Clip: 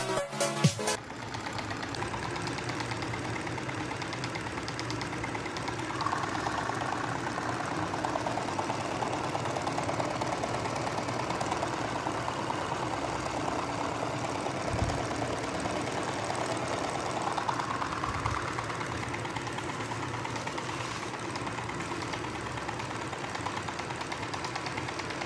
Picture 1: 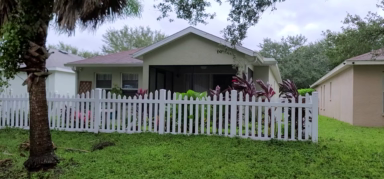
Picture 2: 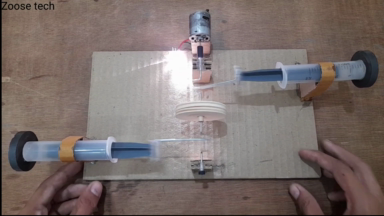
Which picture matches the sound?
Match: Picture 2